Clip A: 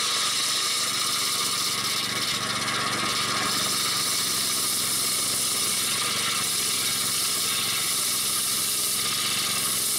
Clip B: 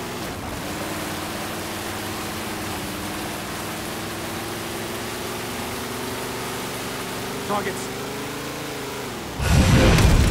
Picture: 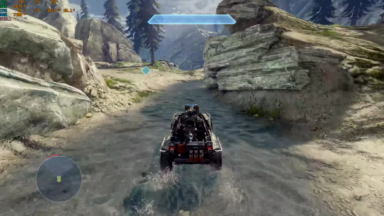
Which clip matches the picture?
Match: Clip B